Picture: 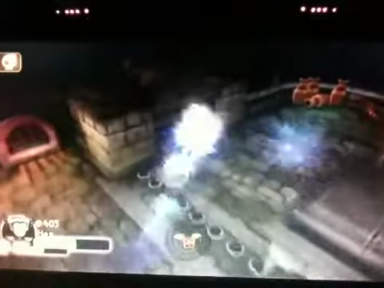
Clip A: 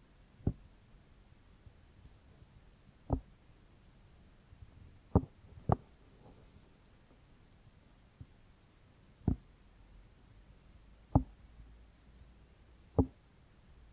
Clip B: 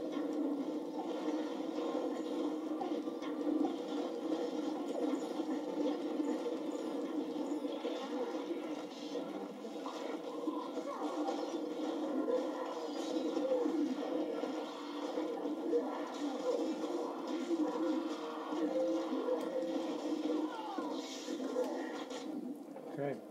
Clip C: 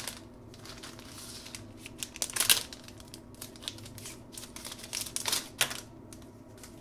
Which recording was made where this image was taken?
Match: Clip B